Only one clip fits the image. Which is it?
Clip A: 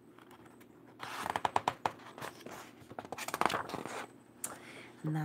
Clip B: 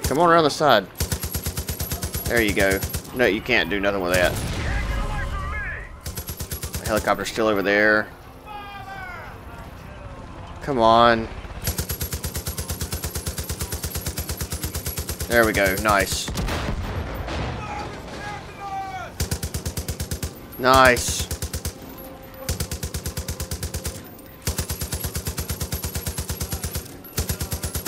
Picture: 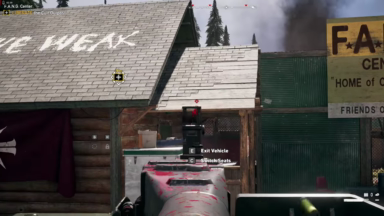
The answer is B